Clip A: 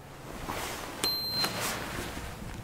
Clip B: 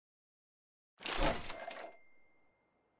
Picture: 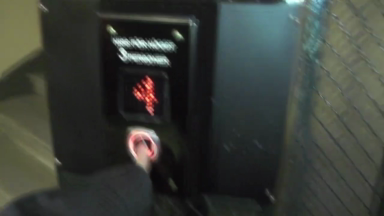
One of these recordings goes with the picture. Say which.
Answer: A